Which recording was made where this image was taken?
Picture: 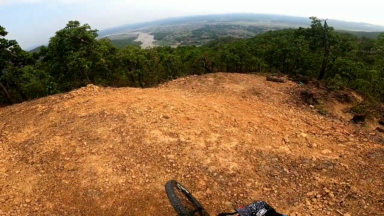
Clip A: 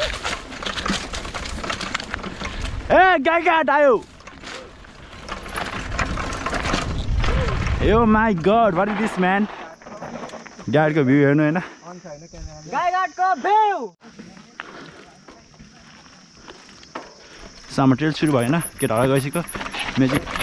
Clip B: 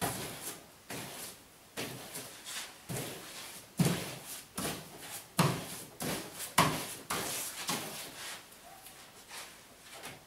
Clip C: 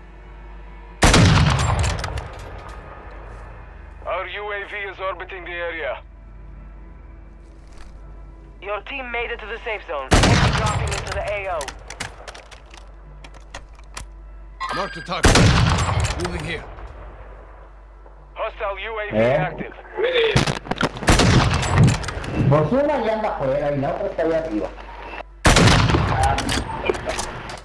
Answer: A